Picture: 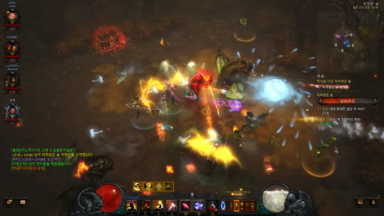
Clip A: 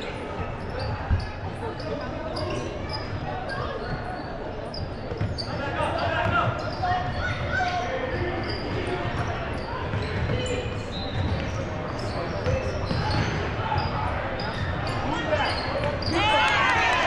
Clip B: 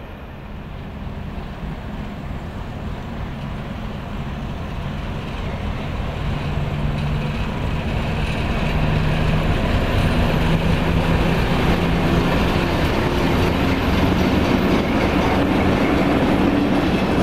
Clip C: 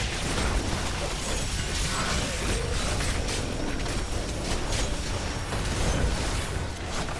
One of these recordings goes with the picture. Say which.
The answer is C